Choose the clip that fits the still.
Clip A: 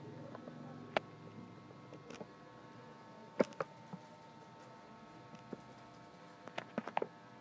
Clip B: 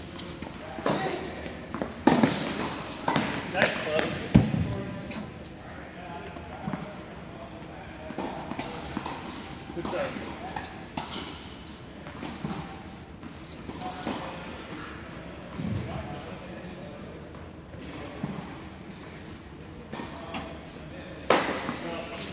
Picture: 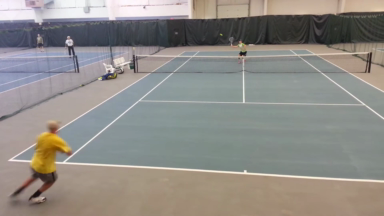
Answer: B